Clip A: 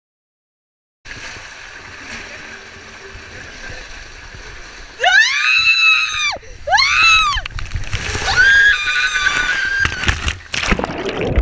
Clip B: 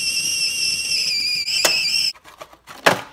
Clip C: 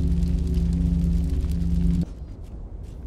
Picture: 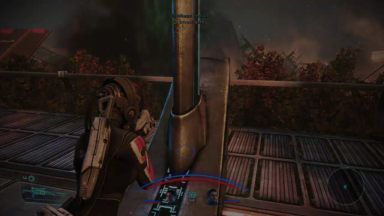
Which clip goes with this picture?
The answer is C